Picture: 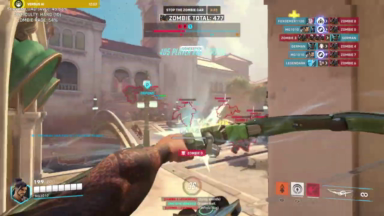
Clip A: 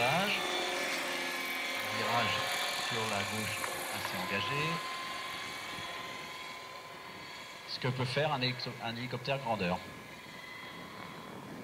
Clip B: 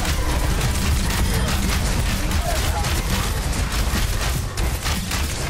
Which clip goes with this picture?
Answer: B